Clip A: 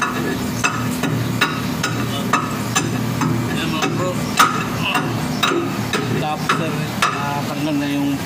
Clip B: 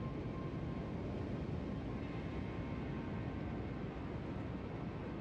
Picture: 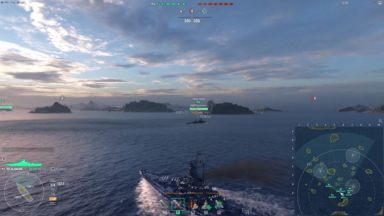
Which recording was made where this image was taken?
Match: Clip B